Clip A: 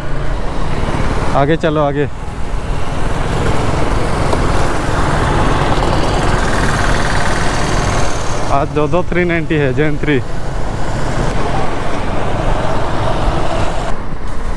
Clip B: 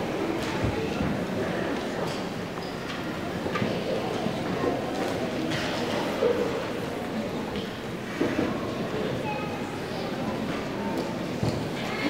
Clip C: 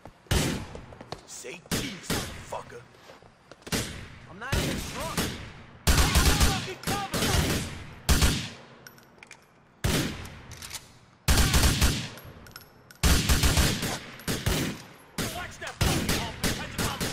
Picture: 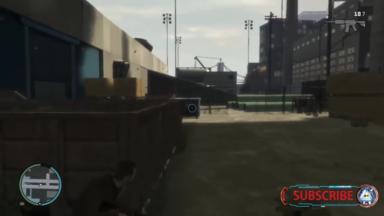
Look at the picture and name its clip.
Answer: C